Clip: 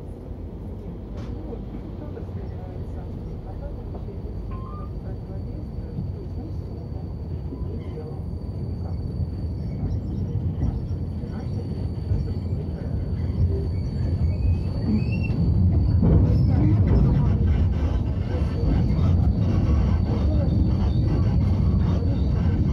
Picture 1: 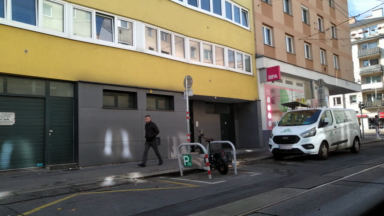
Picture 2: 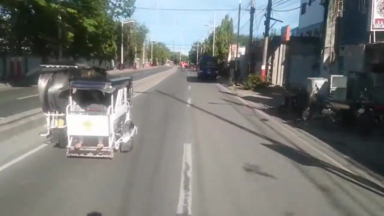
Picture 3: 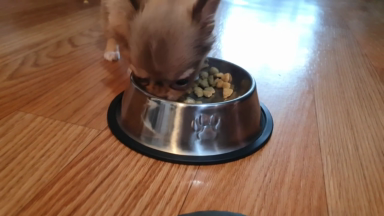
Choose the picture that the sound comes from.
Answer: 1